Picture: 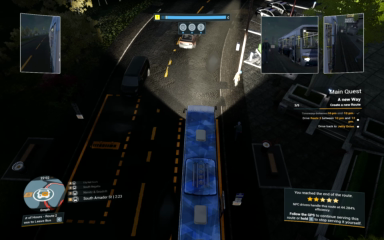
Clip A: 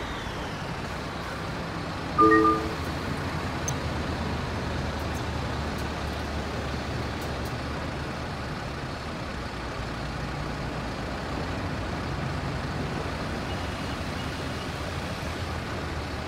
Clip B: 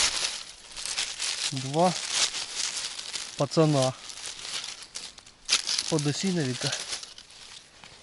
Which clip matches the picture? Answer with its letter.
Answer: A